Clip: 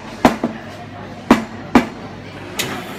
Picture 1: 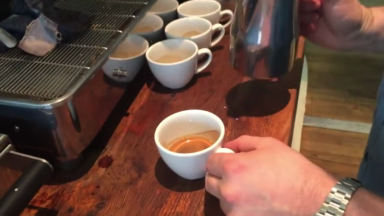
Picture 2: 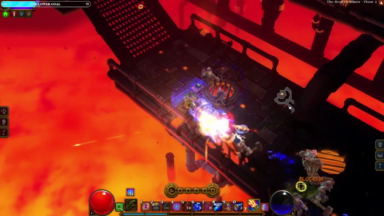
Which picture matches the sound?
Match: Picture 1